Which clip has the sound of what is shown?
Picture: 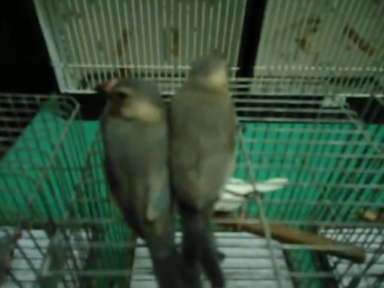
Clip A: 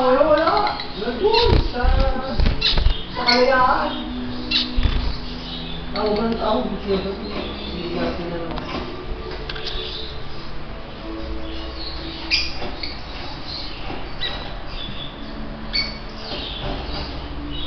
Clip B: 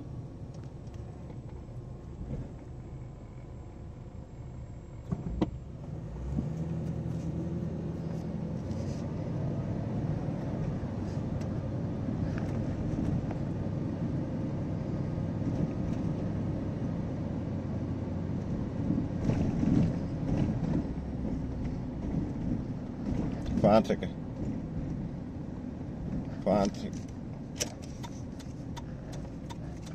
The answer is A